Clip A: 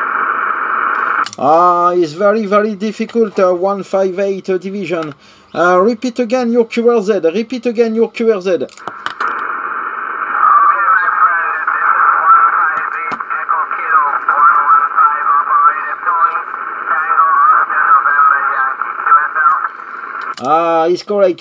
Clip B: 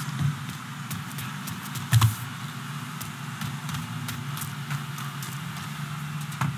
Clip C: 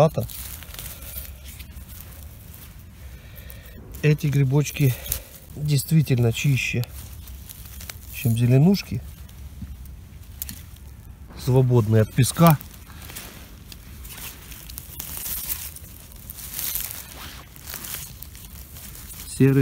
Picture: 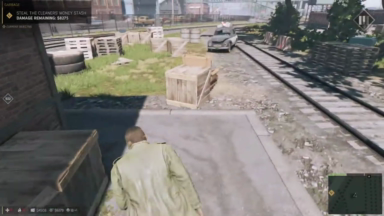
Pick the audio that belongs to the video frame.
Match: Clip B